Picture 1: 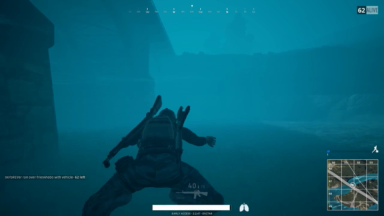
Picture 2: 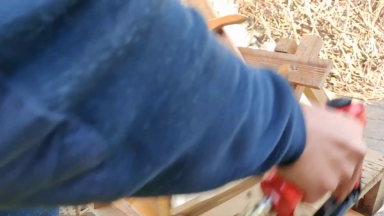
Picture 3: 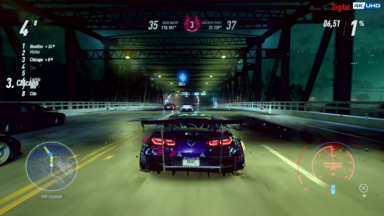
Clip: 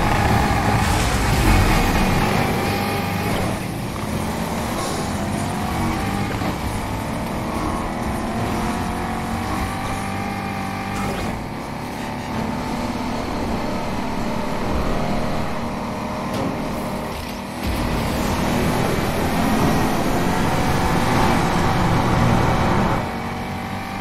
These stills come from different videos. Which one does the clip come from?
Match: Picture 3